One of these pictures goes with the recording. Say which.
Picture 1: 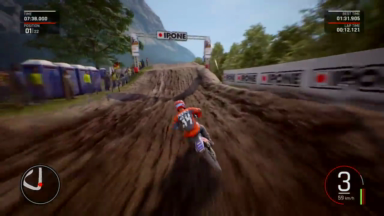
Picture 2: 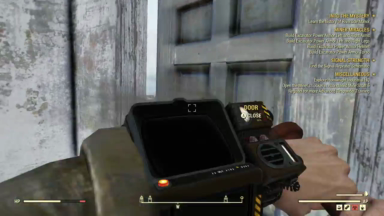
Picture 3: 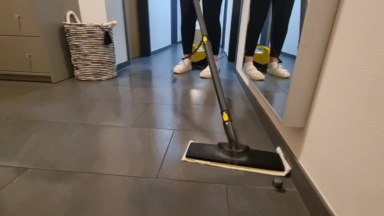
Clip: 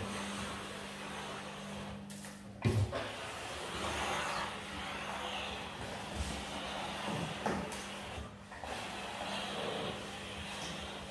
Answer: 3